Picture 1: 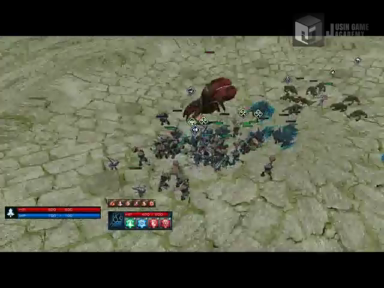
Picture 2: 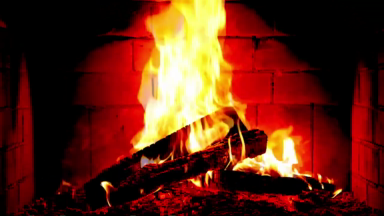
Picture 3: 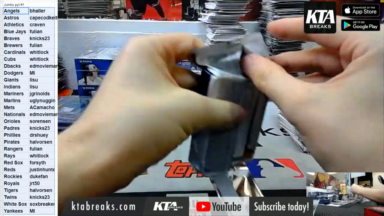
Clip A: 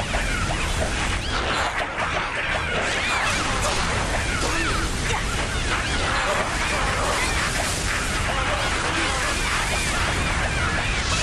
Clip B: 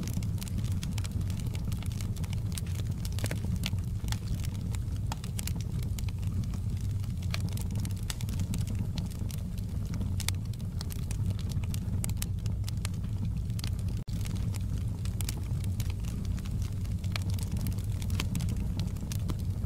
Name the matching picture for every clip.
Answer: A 1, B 2